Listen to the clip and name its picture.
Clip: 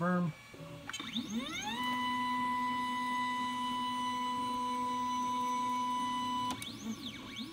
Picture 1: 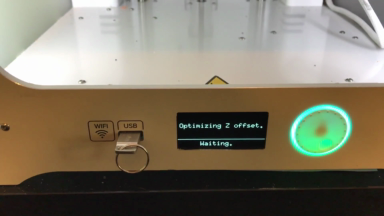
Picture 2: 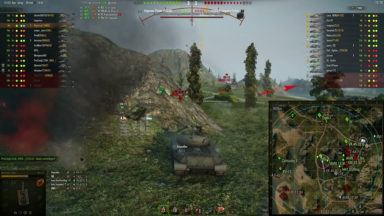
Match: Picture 1